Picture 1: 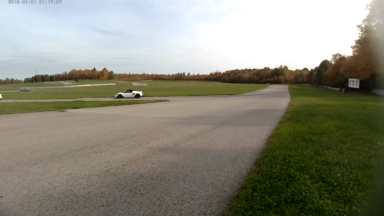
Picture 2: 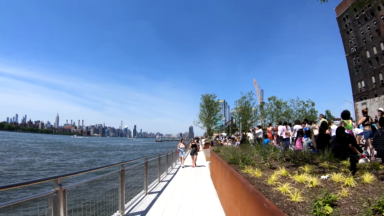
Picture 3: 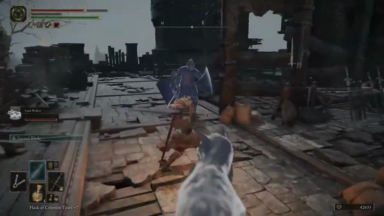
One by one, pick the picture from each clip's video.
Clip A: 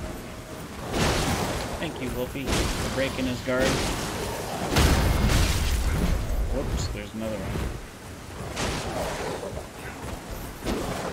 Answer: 3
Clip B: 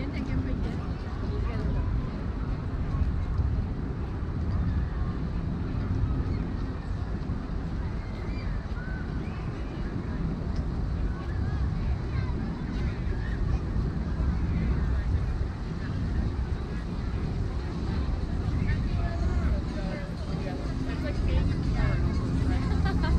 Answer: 2